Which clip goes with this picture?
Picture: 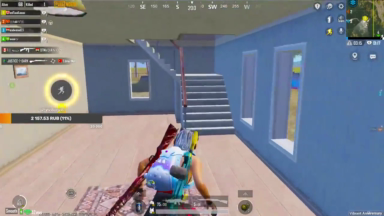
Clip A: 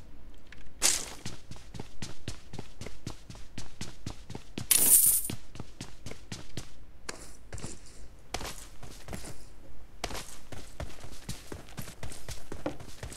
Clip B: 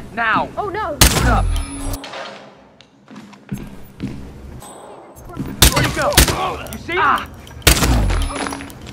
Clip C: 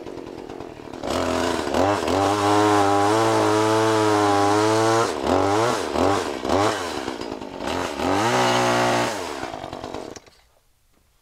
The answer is A